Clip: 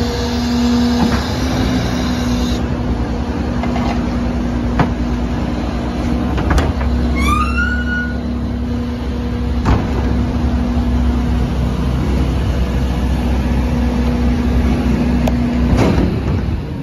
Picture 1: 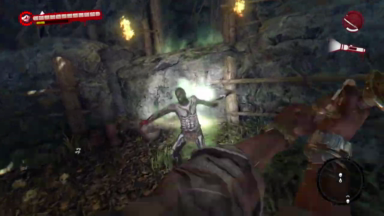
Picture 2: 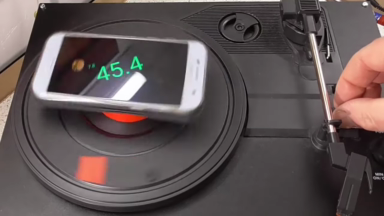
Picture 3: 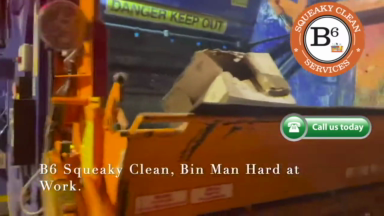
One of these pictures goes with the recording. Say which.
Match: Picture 3